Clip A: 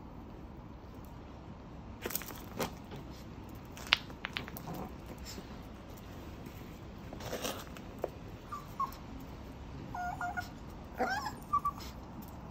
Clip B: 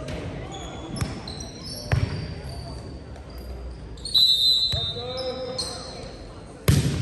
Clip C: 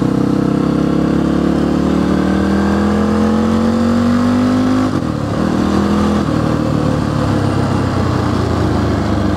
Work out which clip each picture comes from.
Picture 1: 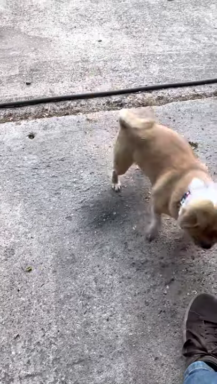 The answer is A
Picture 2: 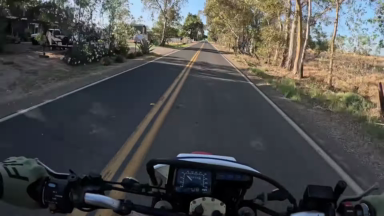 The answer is C